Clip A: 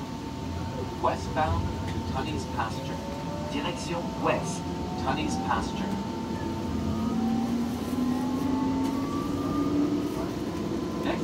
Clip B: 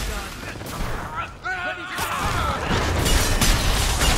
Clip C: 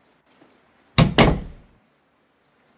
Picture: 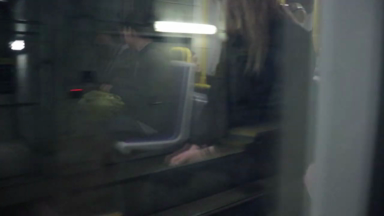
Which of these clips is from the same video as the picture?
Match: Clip A